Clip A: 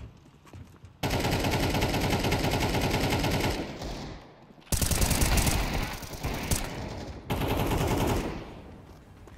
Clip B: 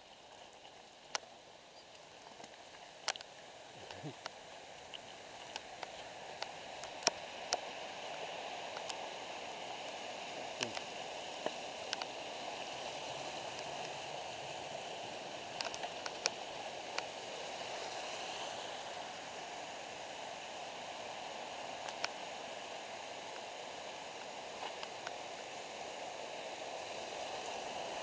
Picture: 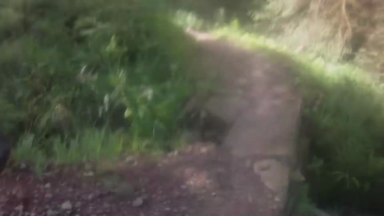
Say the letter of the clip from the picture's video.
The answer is B